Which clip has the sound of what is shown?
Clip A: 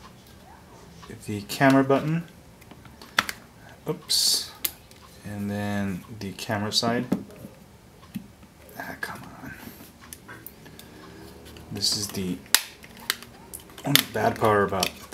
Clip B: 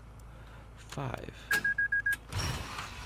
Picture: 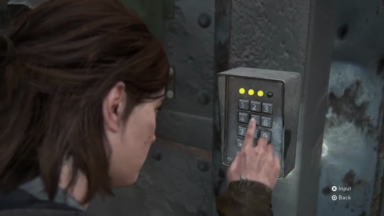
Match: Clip B